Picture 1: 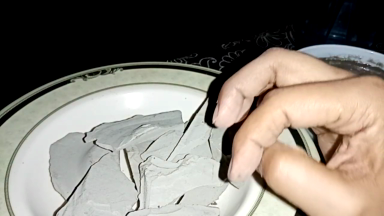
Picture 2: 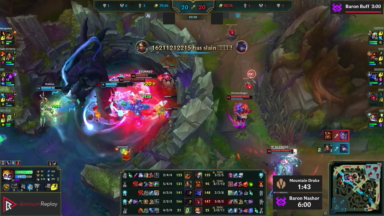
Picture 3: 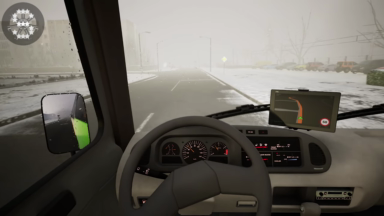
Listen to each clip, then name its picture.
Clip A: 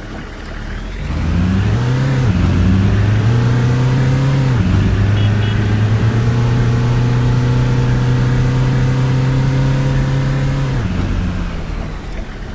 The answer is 3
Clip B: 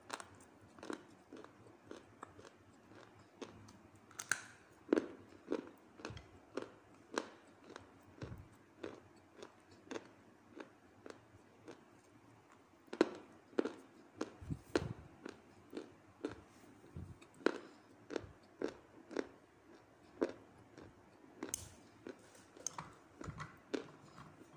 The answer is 1